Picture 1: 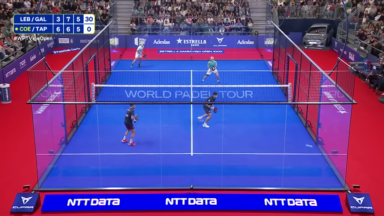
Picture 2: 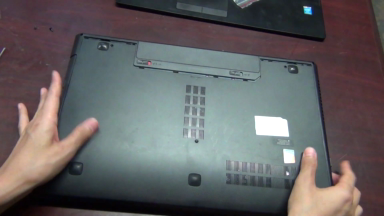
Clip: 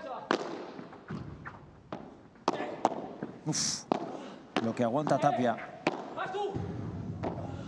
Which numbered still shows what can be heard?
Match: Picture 1